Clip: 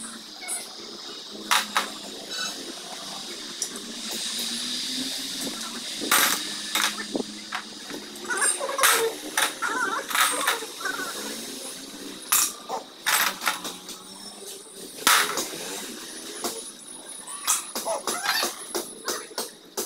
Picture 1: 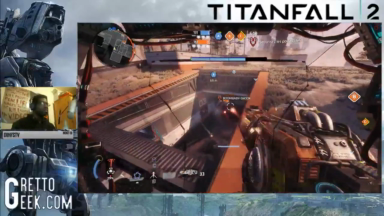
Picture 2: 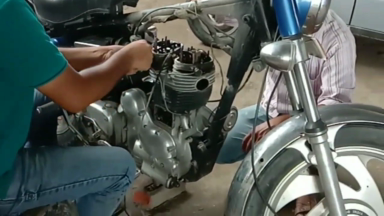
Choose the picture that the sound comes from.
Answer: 2